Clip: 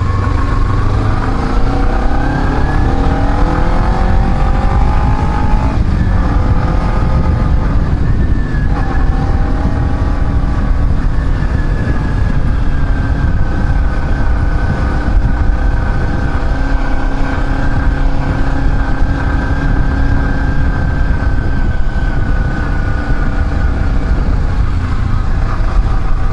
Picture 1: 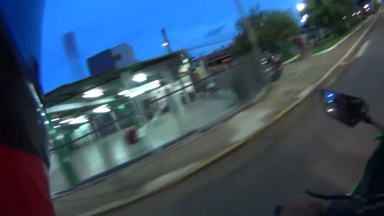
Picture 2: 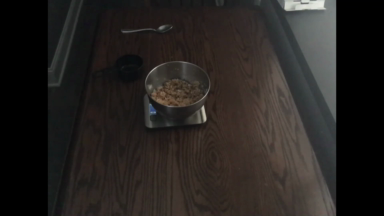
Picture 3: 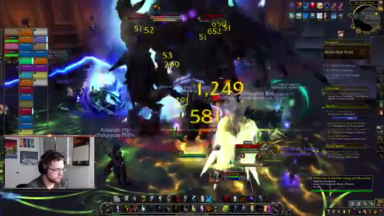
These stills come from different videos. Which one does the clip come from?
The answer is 1